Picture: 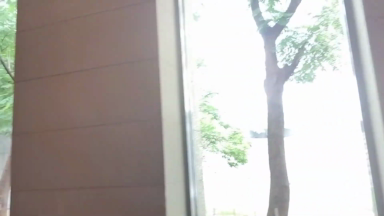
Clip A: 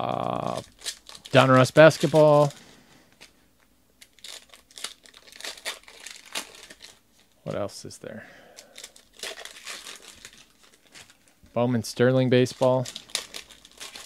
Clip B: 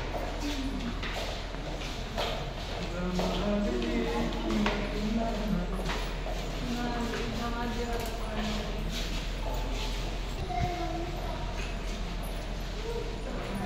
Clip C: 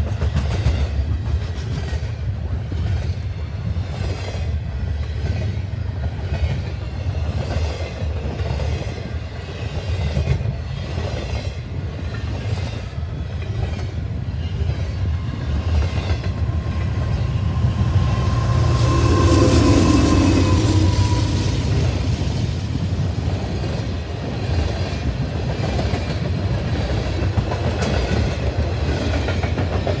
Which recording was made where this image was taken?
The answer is B